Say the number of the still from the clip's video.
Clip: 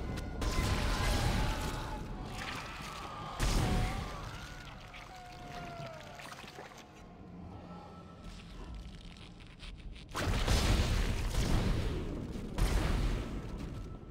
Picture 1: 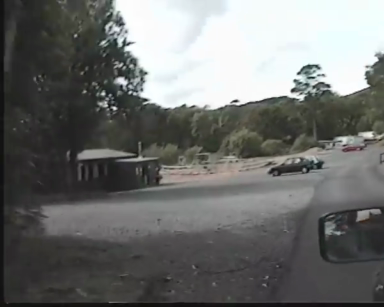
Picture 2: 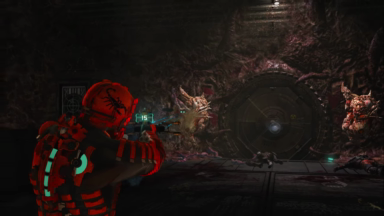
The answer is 2